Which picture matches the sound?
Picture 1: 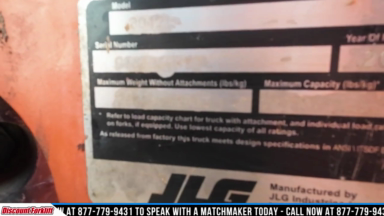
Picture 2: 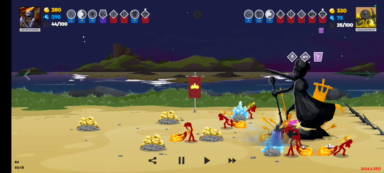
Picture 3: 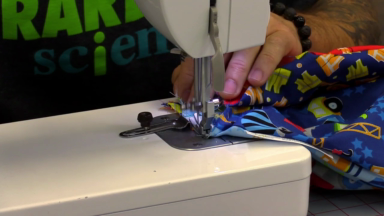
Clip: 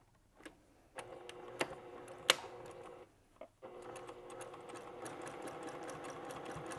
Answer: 3